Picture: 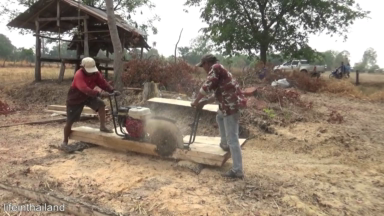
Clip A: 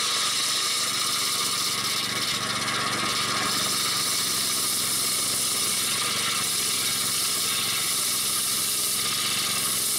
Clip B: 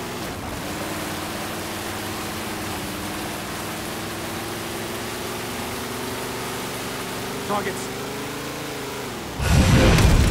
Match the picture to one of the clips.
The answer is A